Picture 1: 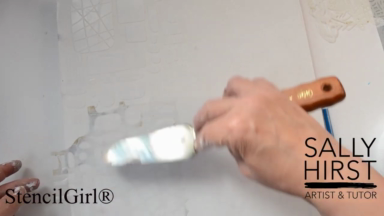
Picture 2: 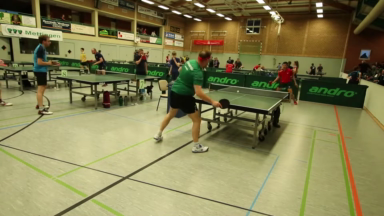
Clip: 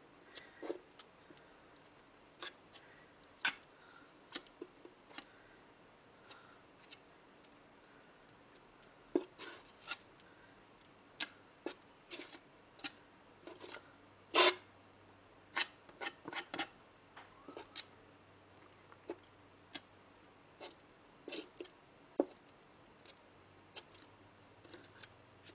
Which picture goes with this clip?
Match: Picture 1